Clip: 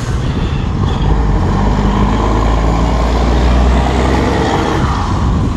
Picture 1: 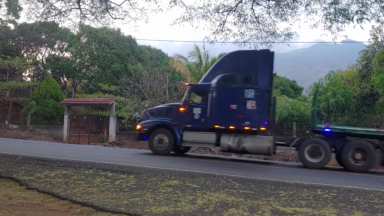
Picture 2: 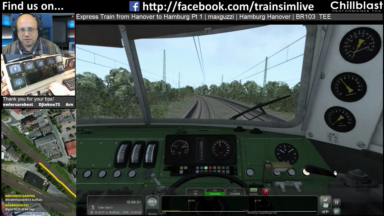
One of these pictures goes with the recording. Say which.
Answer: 1